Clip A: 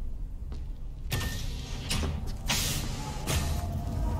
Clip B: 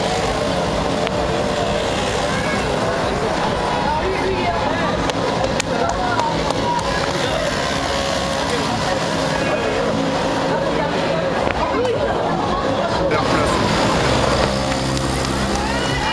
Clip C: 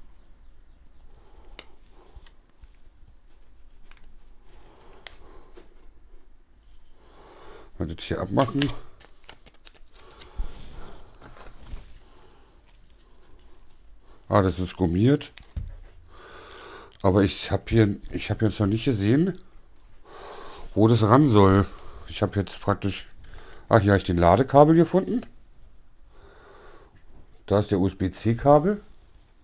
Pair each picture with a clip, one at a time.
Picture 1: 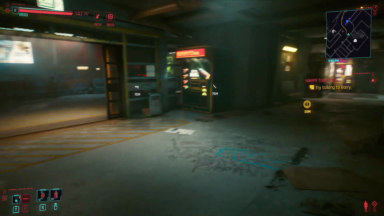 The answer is A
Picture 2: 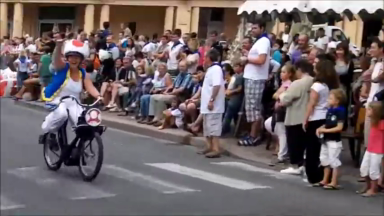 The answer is B